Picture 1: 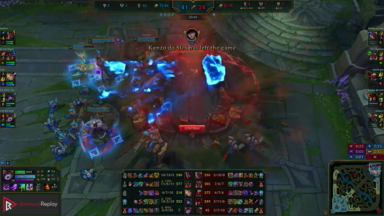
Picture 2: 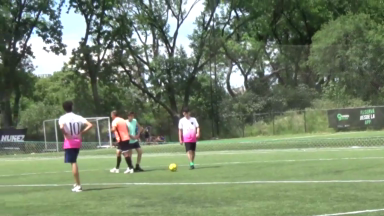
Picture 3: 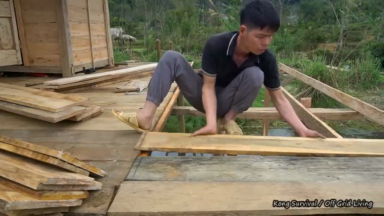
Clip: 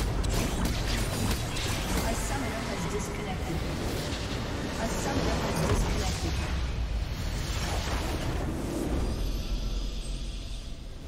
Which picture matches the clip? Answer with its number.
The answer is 1